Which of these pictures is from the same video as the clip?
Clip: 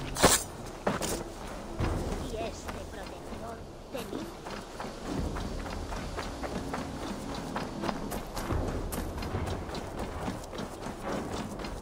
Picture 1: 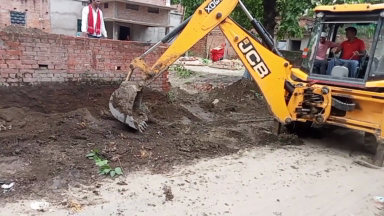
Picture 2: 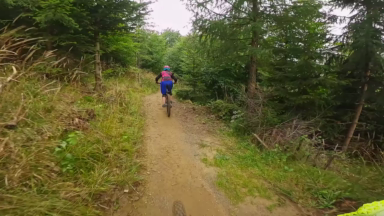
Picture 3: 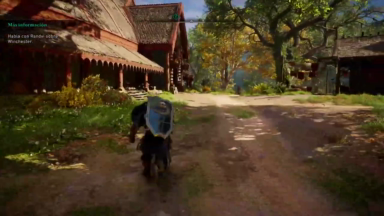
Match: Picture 3